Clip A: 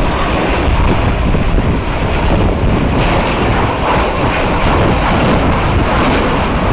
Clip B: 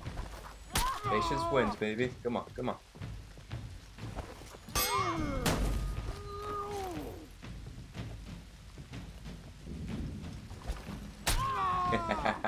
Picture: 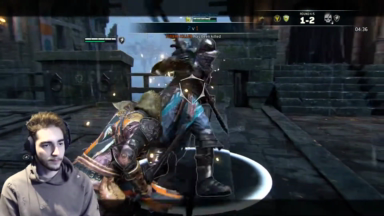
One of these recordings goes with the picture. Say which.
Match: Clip B